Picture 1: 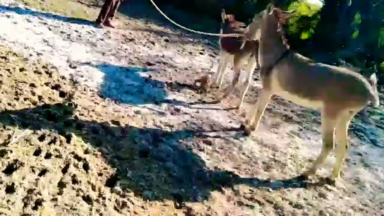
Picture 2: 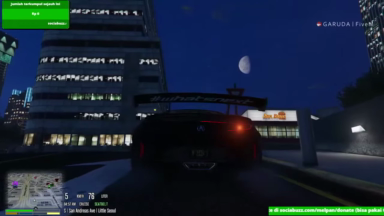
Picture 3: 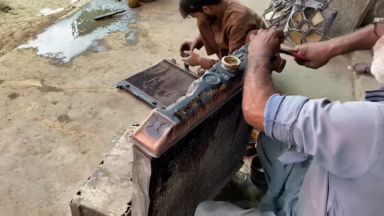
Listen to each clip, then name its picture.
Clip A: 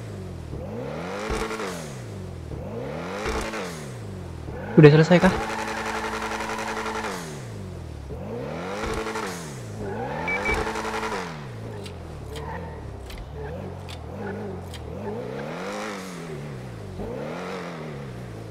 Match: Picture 2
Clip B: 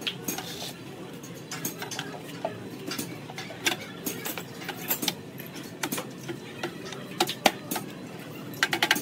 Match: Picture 3